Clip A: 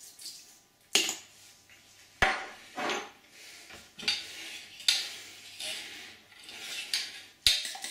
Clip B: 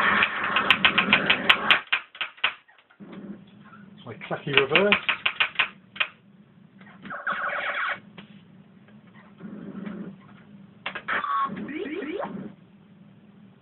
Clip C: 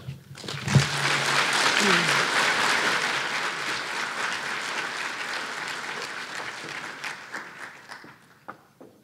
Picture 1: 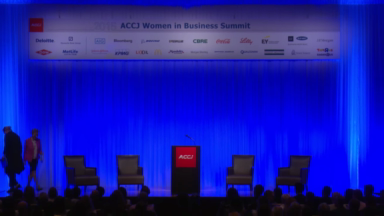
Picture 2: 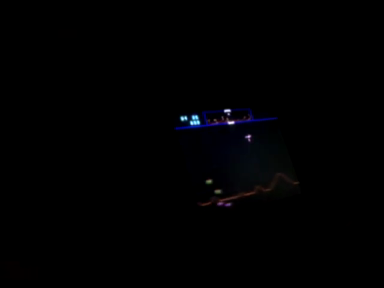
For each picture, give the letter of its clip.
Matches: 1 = C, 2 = B